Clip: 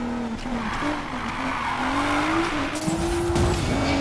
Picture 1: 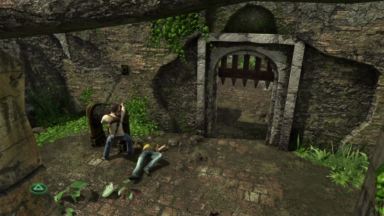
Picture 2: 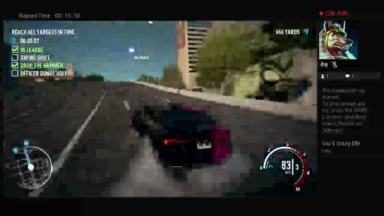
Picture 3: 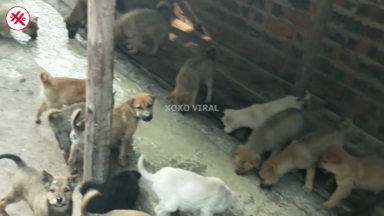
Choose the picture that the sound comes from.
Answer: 2